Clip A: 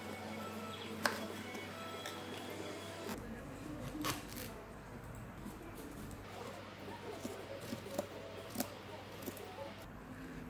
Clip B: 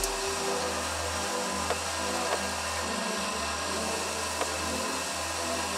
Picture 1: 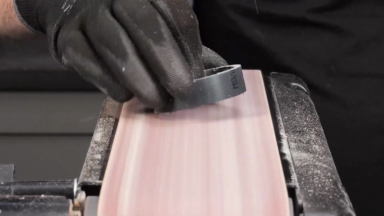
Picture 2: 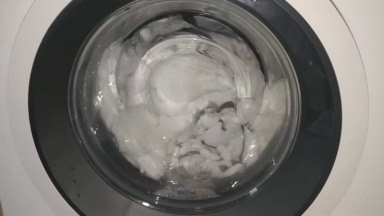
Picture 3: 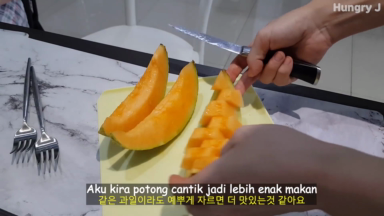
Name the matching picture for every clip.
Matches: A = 3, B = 1